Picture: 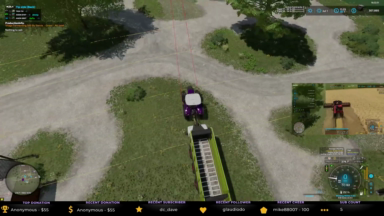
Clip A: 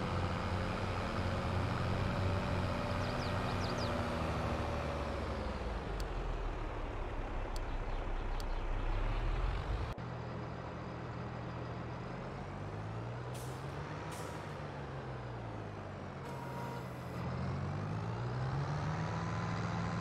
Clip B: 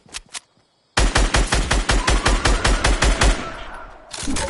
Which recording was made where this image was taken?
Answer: A